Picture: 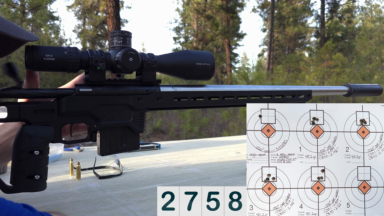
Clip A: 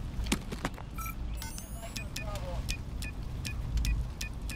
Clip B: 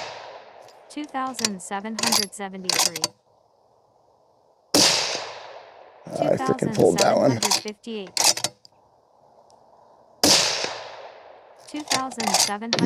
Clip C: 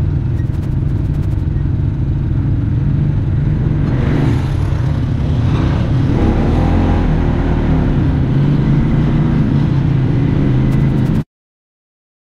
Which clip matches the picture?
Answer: B